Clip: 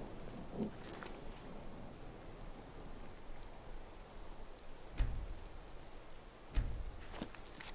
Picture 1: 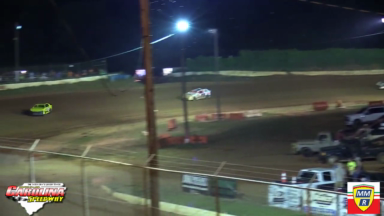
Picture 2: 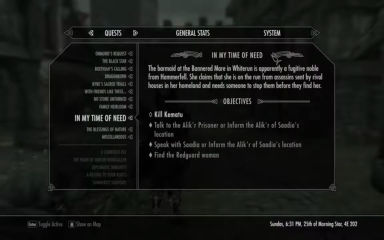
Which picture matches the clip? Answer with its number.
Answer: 2